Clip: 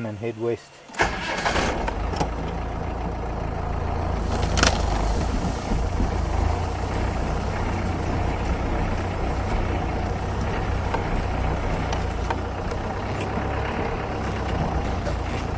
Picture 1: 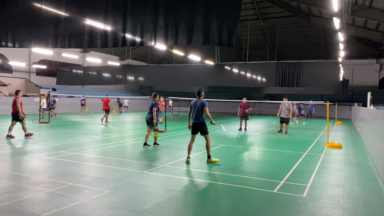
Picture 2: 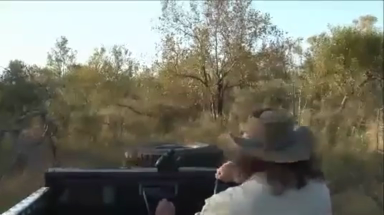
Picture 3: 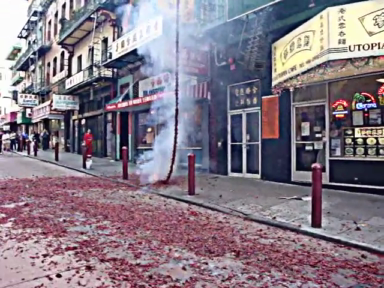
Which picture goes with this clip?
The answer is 2